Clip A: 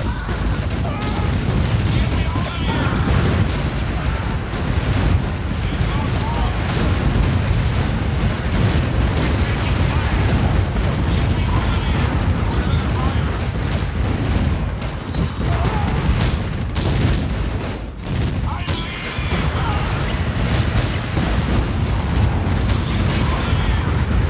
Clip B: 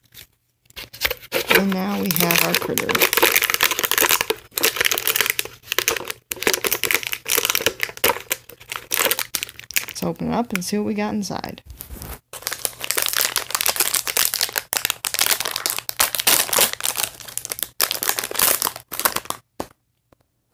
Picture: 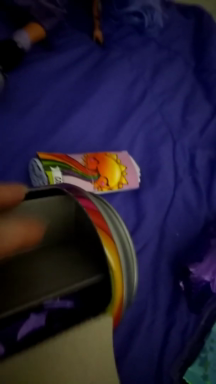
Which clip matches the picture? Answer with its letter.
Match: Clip B